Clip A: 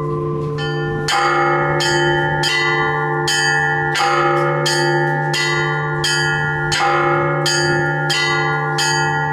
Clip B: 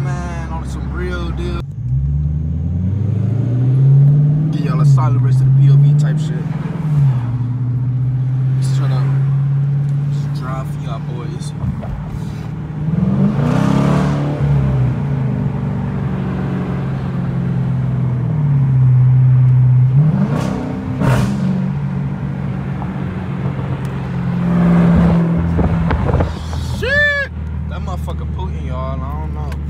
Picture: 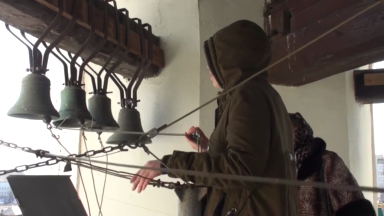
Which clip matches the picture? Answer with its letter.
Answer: A